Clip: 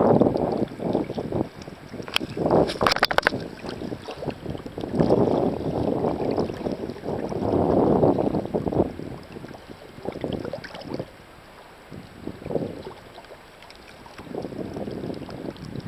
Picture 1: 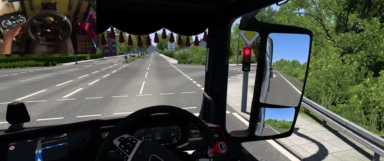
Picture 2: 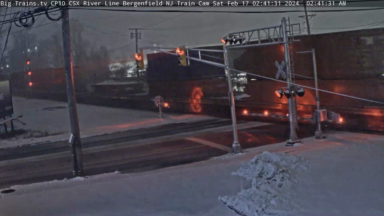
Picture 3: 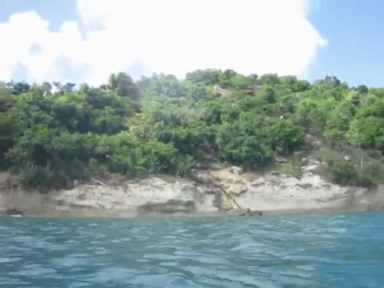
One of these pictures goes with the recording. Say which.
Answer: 3